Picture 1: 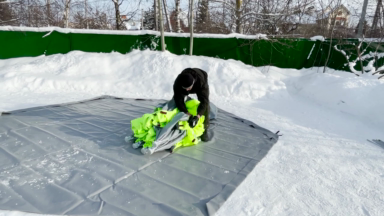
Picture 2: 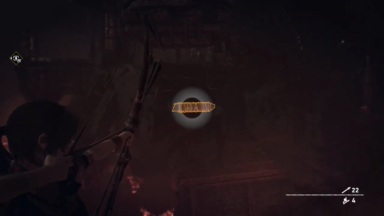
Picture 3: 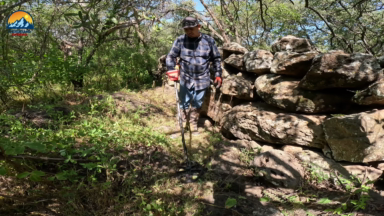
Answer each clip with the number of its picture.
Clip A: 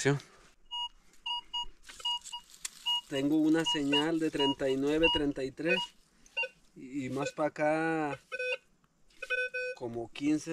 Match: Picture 3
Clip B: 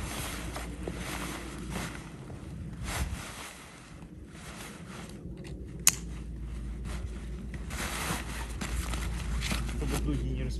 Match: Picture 1